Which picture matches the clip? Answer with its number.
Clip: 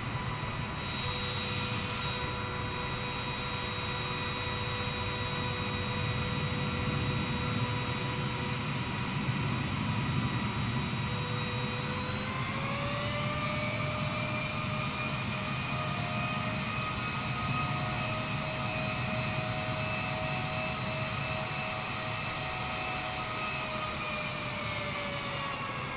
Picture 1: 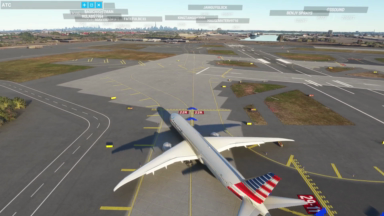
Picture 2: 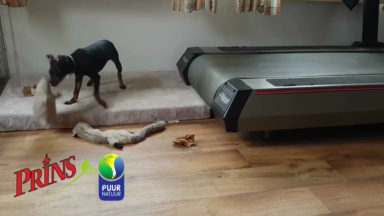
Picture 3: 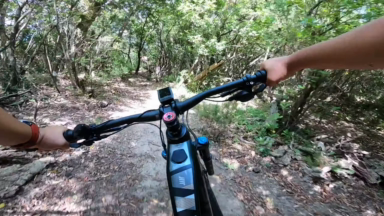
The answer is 1